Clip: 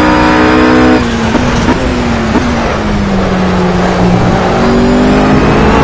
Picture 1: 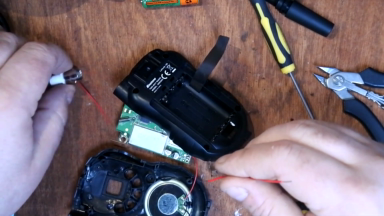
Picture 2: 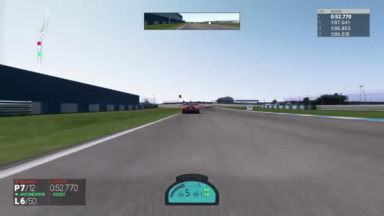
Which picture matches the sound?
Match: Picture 2